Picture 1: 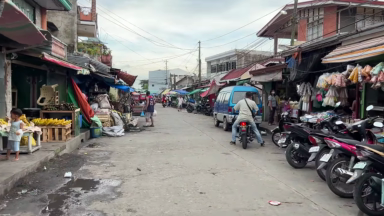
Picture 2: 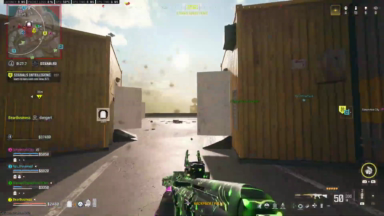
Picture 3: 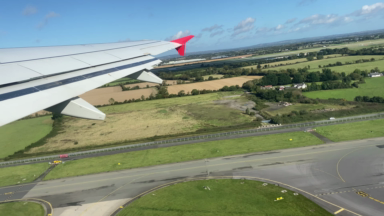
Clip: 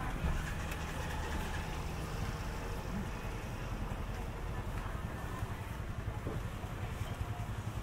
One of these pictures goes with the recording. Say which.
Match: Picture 1